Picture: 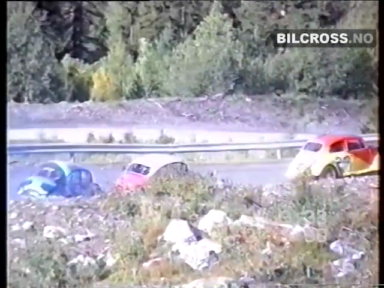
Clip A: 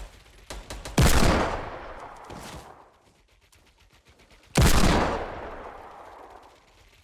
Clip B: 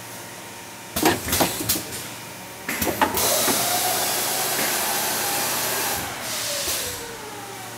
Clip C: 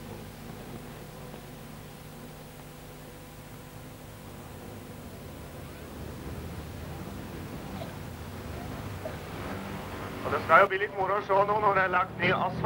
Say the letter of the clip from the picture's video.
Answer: C